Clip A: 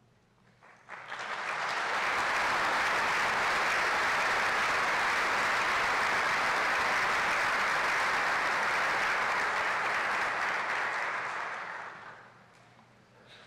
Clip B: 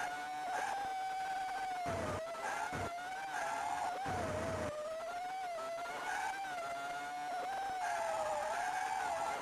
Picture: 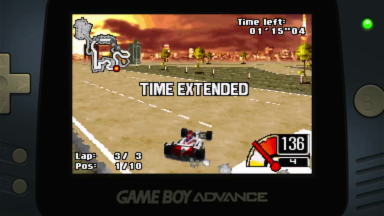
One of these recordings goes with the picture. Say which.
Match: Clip B